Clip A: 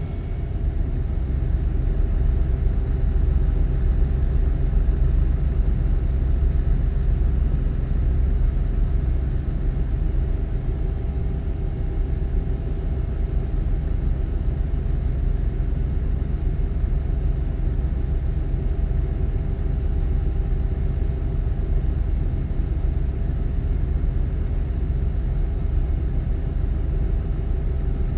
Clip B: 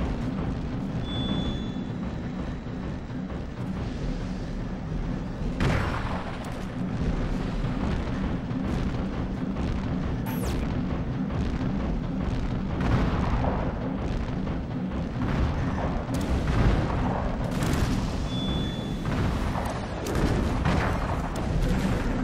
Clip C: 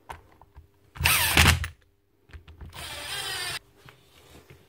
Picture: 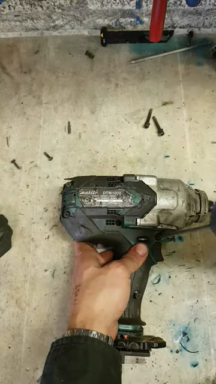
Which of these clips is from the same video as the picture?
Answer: C